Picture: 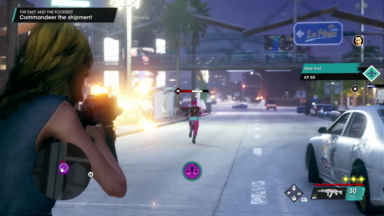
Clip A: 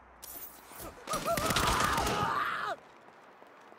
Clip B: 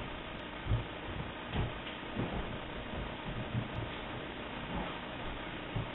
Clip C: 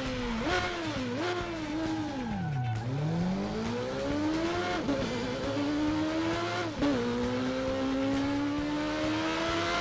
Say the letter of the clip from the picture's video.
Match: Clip A